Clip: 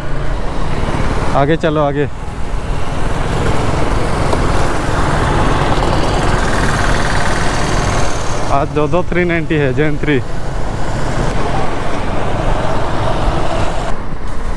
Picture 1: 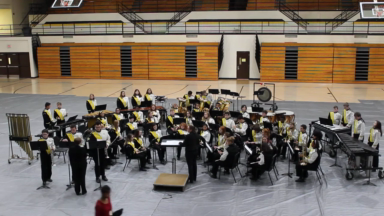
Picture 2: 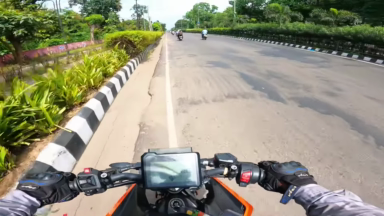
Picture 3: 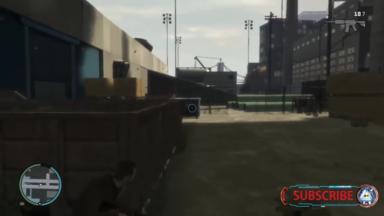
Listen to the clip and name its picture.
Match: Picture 2